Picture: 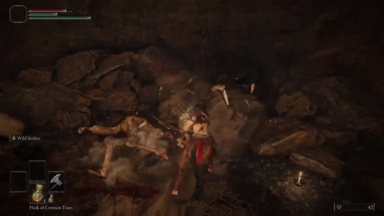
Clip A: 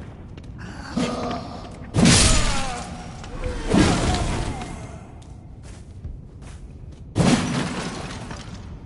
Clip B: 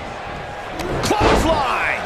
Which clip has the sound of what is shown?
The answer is A